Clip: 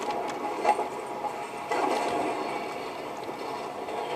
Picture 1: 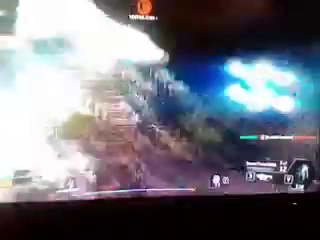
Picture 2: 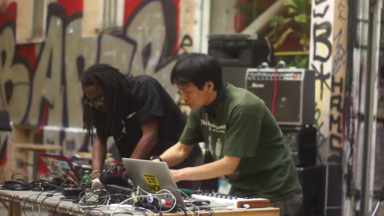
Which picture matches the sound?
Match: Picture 1